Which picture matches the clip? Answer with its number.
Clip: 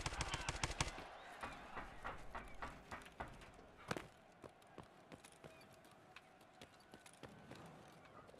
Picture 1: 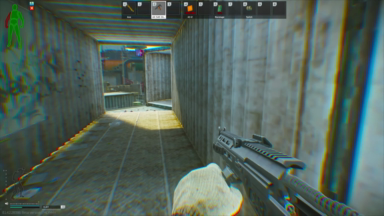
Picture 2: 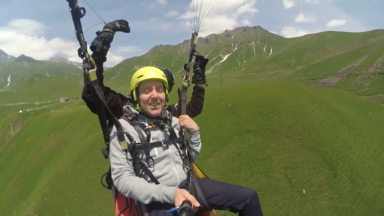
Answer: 1